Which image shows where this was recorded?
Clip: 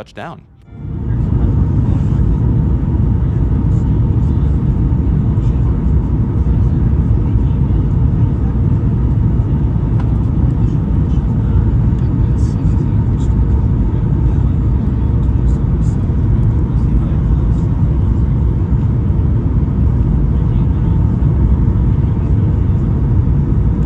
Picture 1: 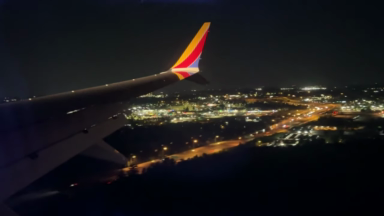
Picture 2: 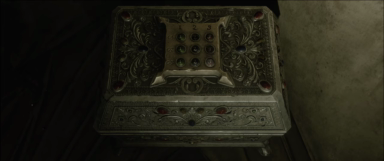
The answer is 1